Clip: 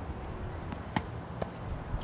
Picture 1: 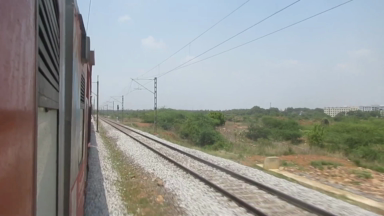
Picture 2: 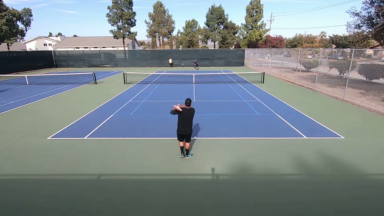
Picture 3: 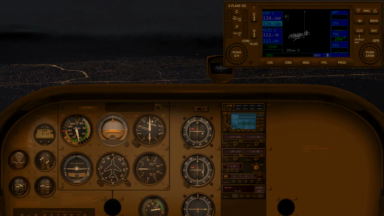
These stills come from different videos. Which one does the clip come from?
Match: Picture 2